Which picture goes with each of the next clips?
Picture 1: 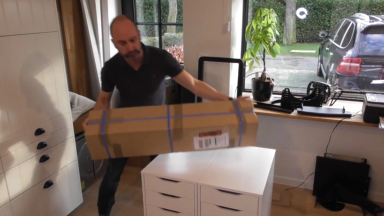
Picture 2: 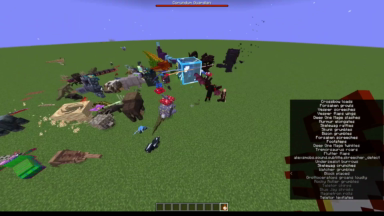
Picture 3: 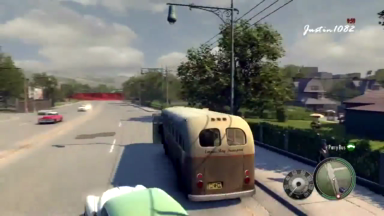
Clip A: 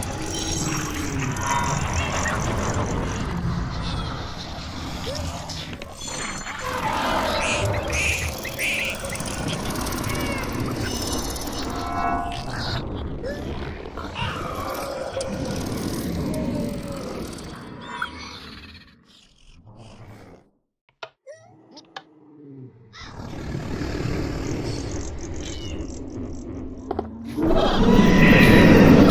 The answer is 2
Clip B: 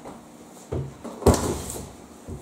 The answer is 1